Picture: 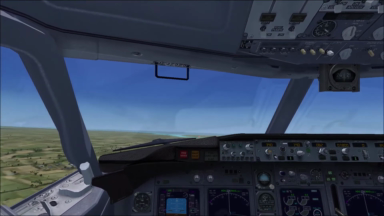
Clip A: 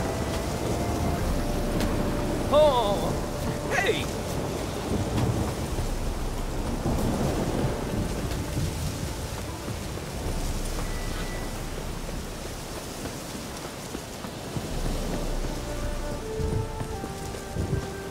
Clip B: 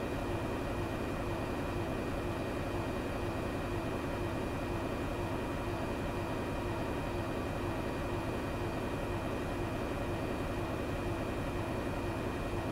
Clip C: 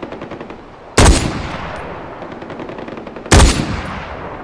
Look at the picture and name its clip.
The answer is B